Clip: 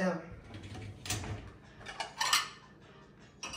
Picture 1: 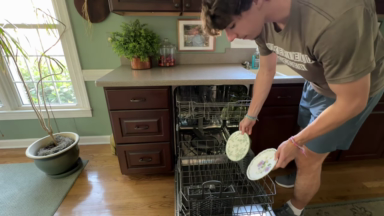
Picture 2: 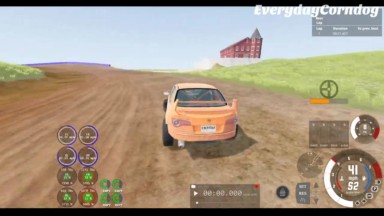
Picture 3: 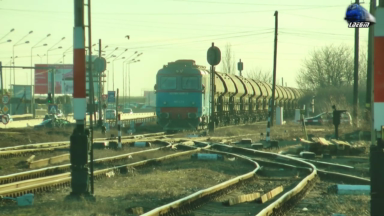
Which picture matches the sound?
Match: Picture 1